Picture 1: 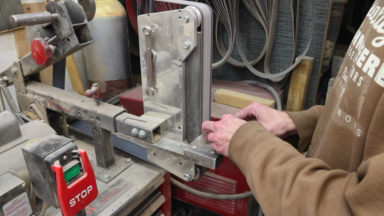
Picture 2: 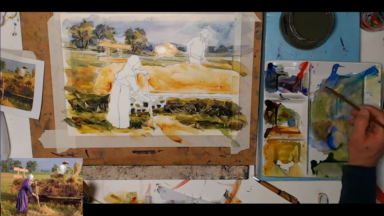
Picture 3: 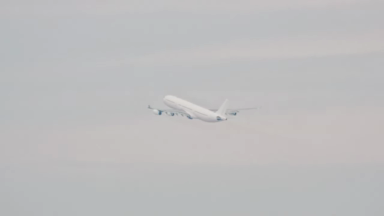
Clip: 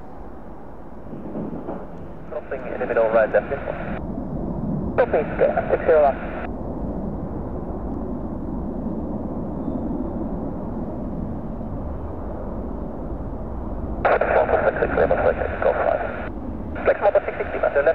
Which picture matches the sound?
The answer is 3